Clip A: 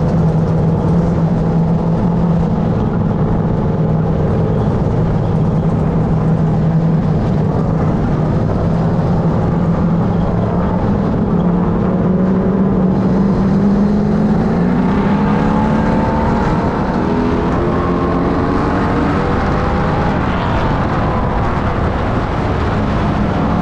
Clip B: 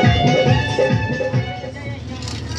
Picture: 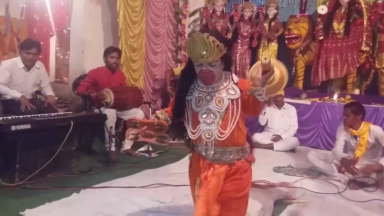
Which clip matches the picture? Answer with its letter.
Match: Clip B